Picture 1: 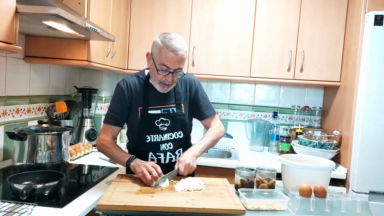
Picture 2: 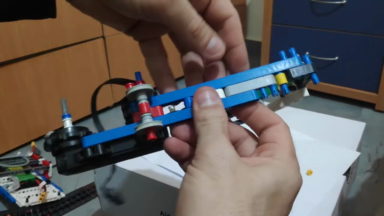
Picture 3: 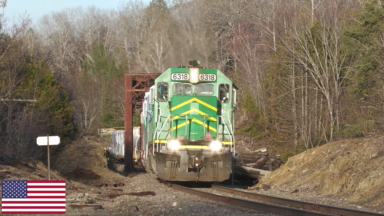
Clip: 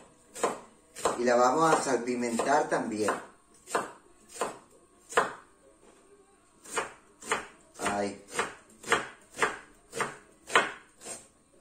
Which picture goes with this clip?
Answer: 1